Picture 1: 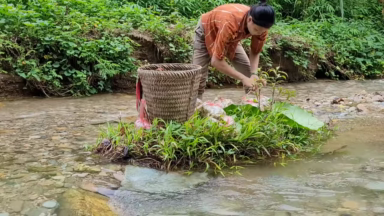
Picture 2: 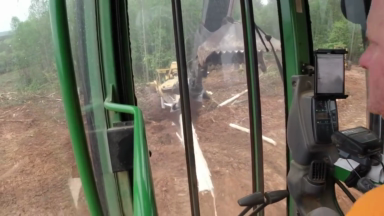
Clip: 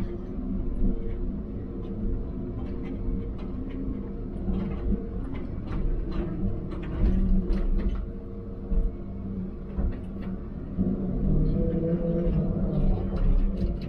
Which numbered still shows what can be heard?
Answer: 2